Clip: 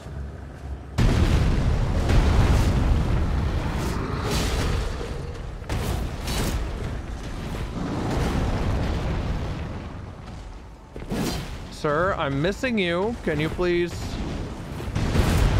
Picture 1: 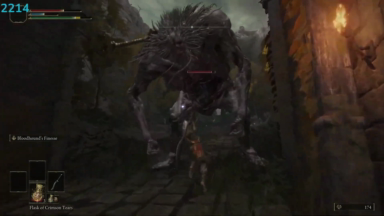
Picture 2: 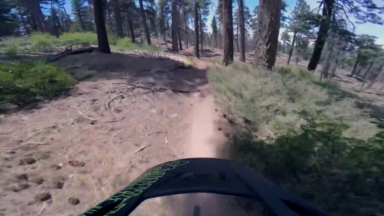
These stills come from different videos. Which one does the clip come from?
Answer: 1